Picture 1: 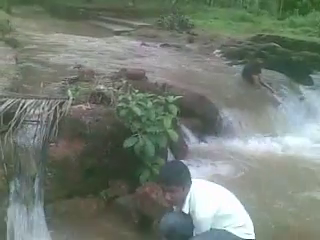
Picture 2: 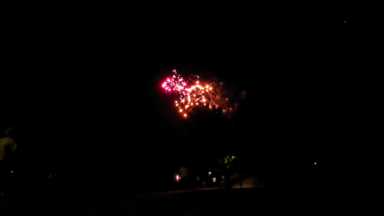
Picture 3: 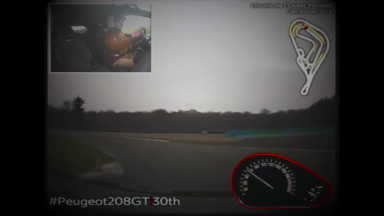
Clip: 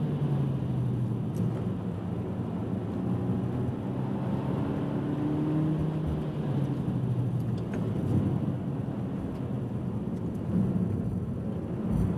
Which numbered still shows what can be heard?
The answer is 3